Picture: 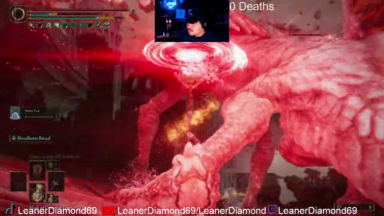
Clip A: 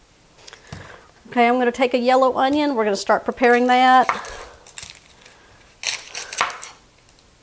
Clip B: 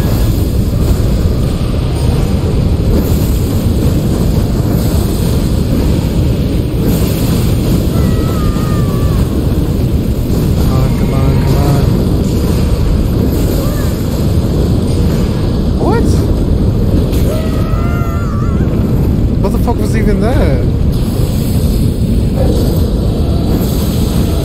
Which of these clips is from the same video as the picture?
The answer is B